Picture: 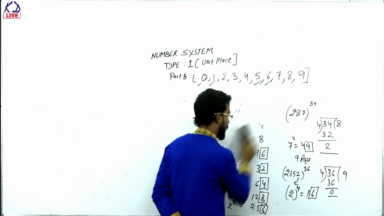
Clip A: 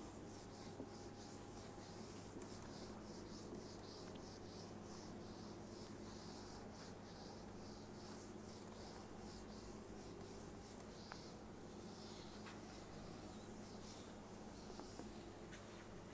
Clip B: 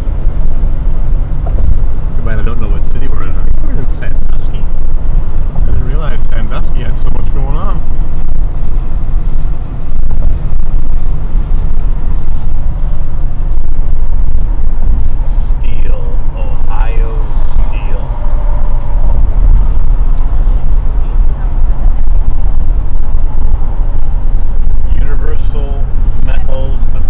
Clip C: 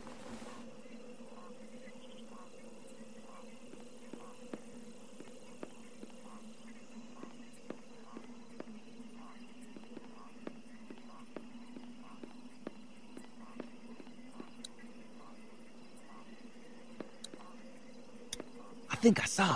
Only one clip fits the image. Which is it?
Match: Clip A